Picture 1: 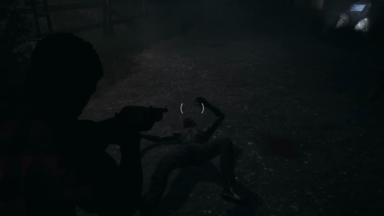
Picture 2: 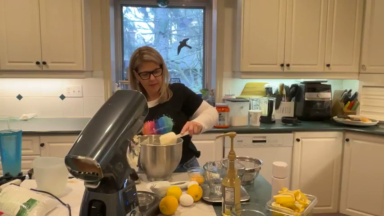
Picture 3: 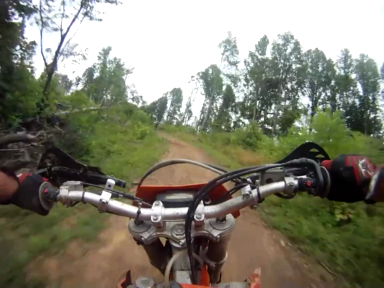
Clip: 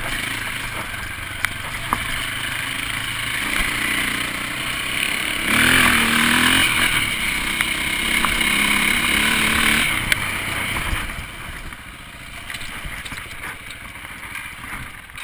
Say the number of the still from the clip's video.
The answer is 3